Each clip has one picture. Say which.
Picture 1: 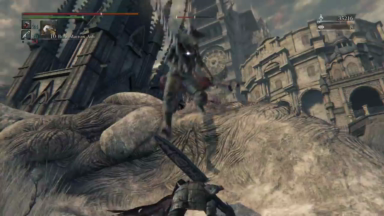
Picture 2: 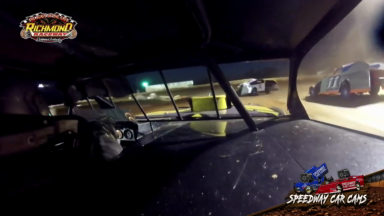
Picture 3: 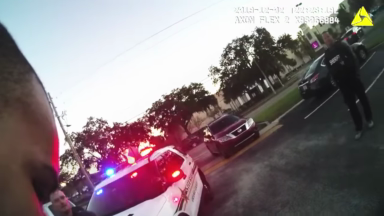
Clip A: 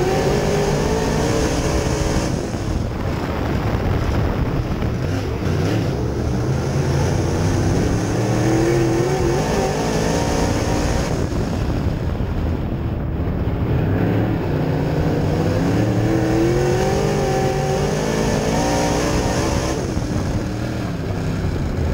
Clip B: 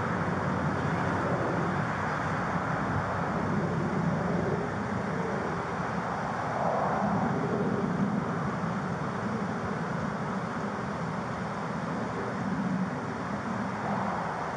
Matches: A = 2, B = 3